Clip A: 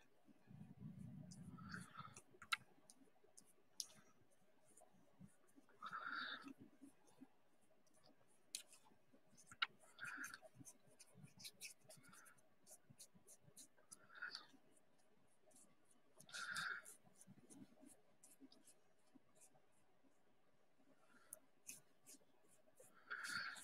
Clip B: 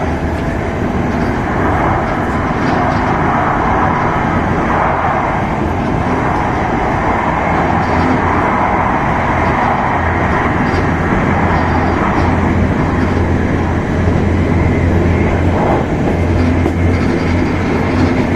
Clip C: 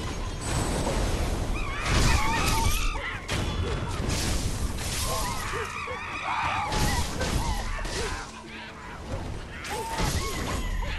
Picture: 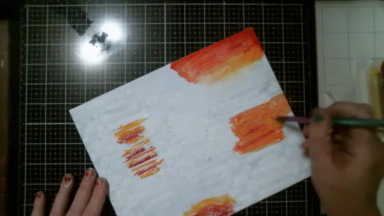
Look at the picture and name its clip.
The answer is A